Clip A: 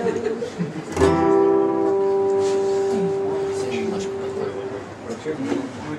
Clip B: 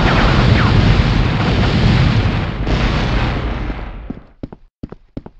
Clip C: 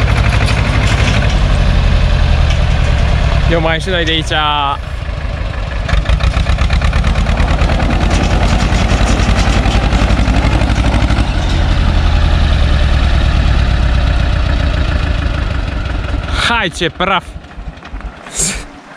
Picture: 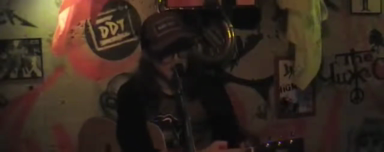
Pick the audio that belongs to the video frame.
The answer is A